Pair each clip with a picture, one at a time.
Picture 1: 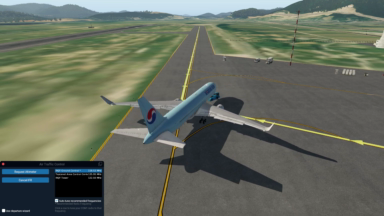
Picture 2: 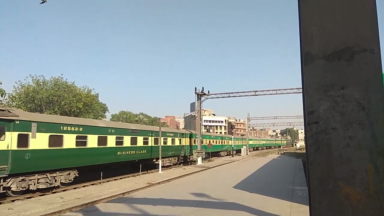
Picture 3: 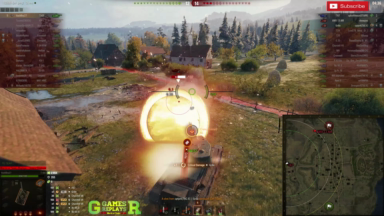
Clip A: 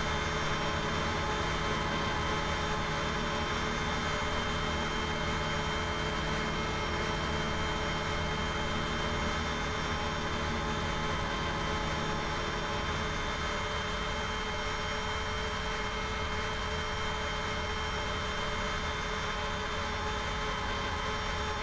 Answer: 1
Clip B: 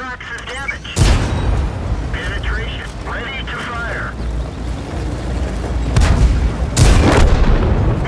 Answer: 3